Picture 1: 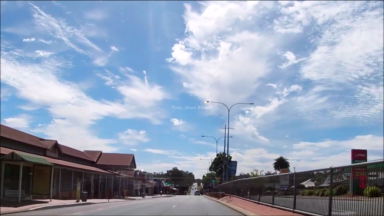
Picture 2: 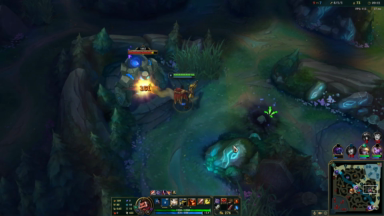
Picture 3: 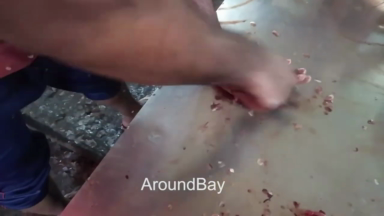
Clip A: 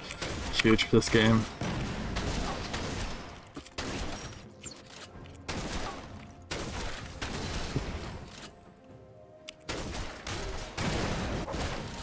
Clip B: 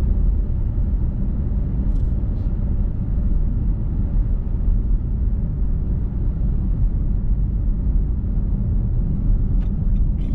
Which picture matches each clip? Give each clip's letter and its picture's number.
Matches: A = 2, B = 1